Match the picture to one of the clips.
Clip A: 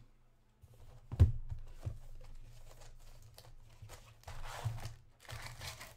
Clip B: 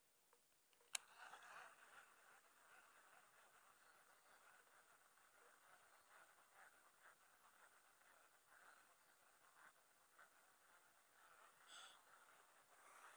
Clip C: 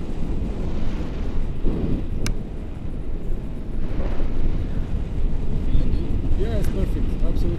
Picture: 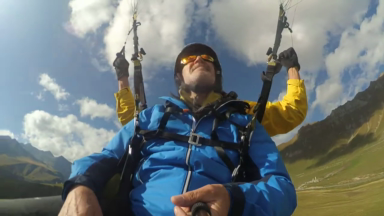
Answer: C